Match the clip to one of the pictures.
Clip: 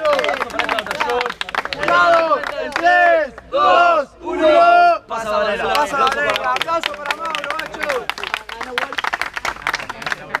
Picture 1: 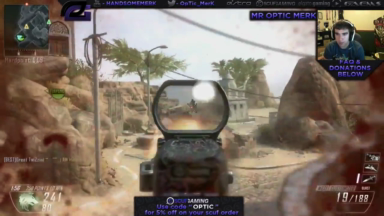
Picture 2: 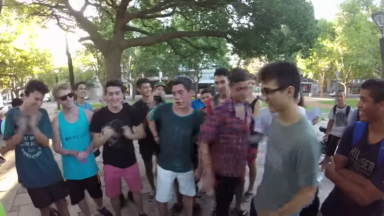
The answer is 2